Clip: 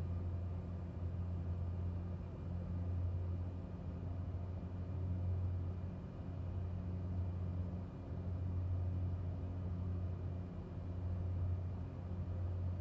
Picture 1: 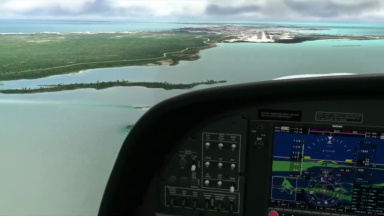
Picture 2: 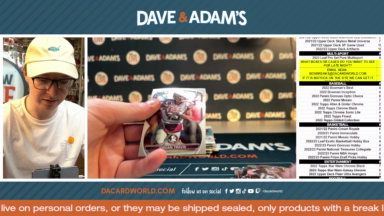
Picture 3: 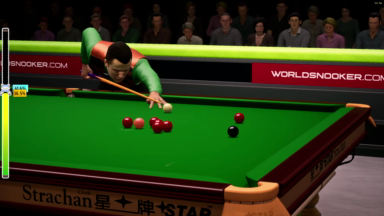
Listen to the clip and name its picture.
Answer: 1